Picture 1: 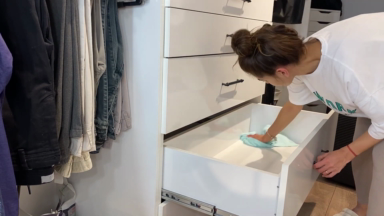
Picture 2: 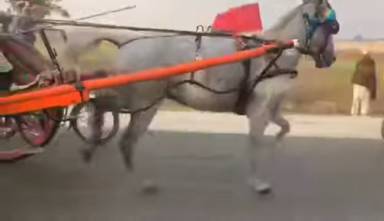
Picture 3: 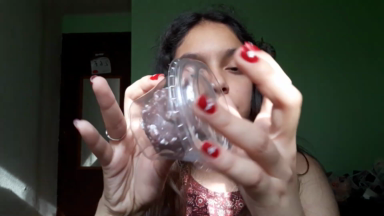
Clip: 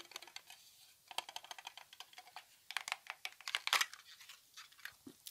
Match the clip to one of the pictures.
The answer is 3